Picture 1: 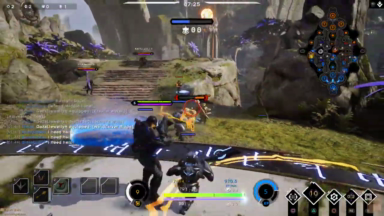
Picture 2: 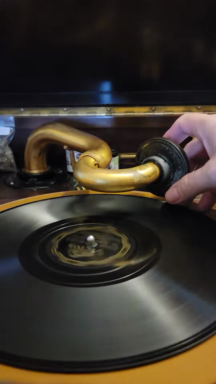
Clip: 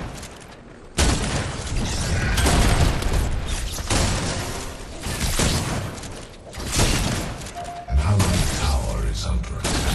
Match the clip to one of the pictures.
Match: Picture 1